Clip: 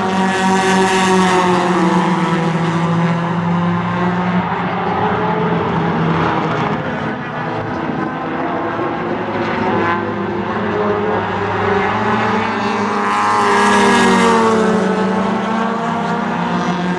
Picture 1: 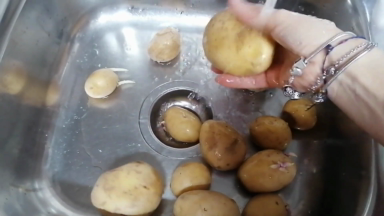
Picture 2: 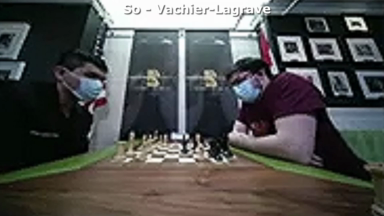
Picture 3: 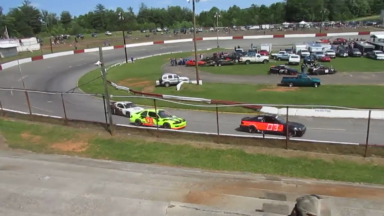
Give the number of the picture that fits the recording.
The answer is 3